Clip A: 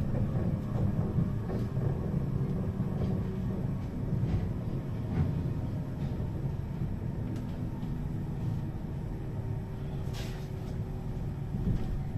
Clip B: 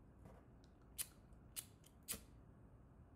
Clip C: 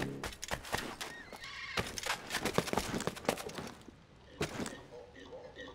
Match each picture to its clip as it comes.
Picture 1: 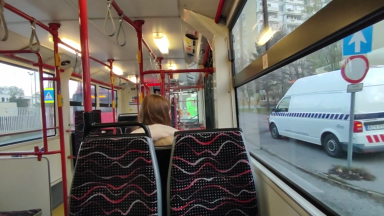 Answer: A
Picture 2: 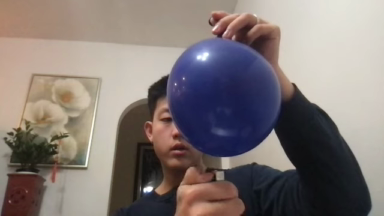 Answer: B